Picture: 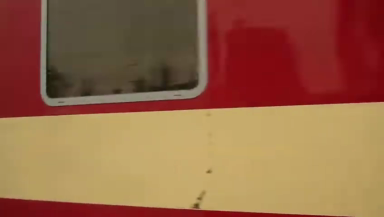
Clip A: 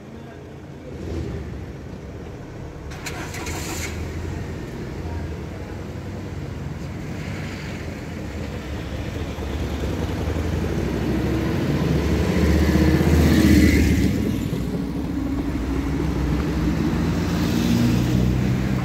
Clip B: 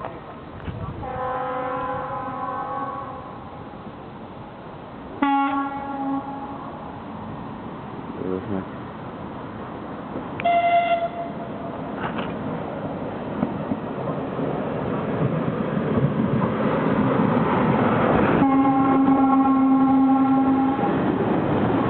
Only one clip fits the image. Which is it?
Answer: B